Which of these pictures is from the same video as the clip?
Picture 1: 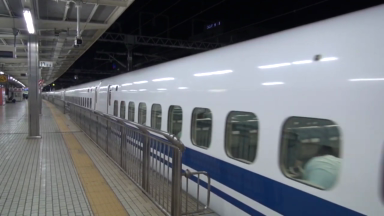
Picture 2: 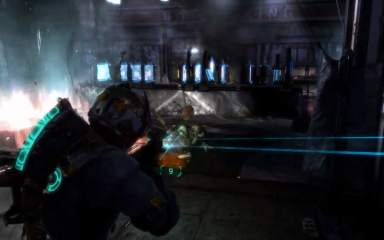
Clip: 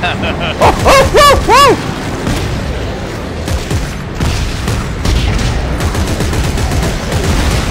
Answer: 2